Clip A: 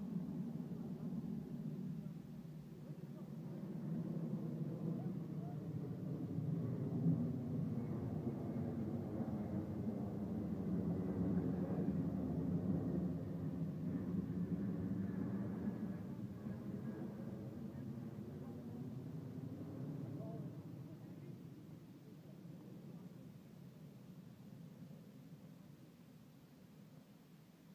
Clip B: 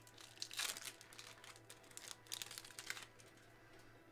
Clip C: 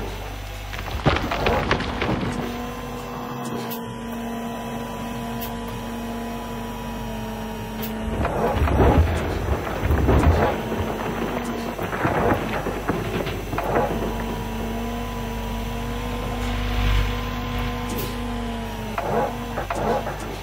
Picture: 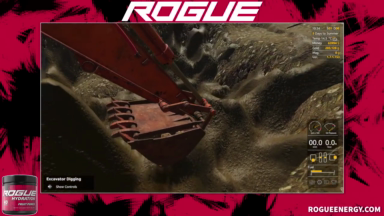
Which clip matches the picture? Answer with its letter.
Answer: C